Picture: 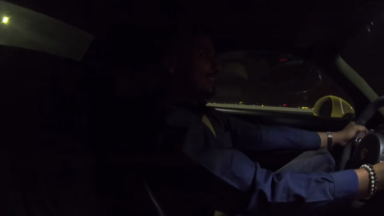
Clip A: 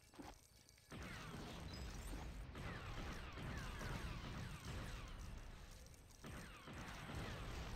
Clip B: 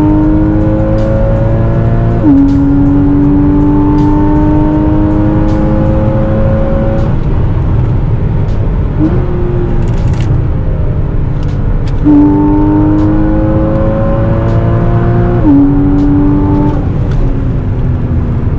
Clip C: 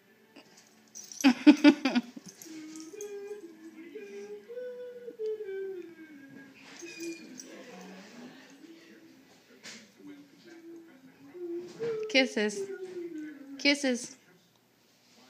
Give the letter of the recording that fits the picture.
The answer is B